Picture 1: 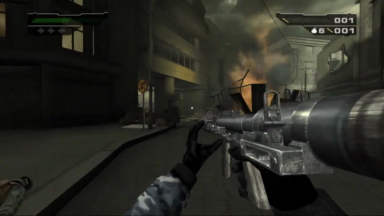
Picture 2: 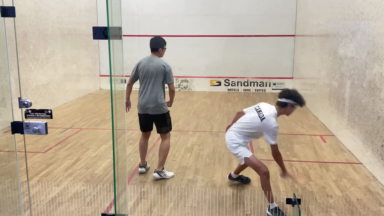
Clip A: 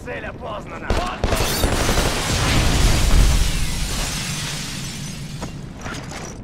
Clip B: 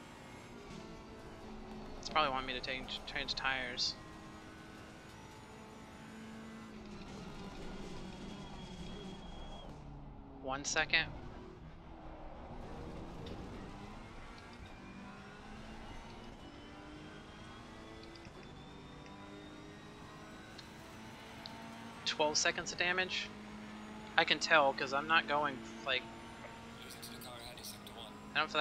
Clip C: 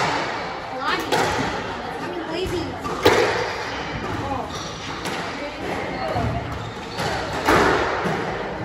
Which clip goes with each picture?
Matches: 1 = A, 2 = C